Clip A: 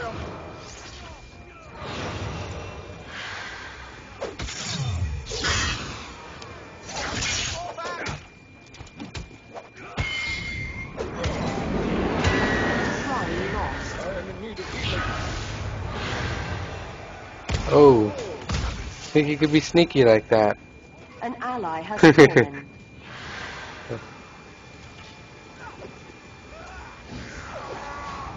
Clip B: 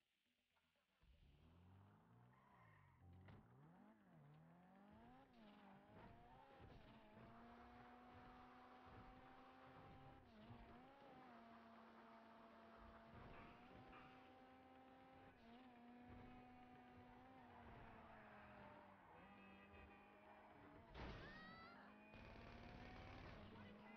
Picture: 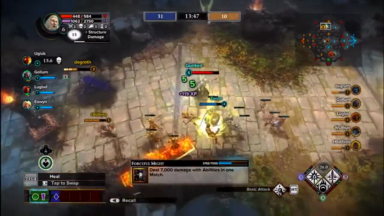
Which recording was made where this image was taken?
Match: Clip A